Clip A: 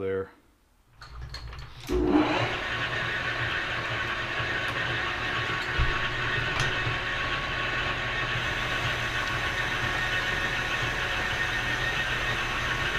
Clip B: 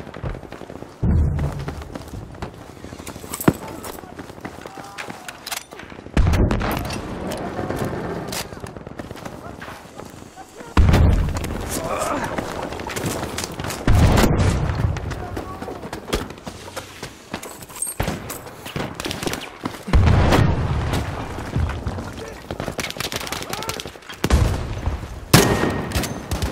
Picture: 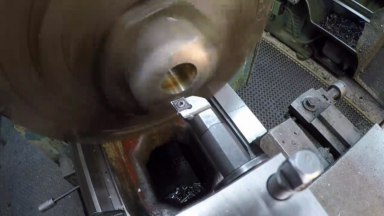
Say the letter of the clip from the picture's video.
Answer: A